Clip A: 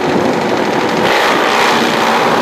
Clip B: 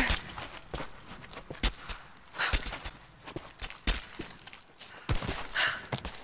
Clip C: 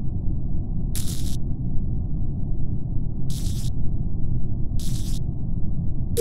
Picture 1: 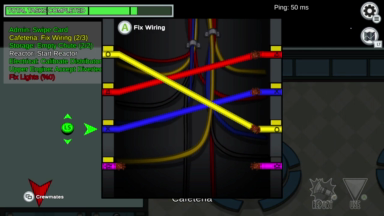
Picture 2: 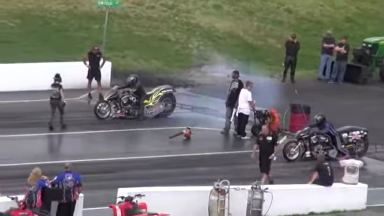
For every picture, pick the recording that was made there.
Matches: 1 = C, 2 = A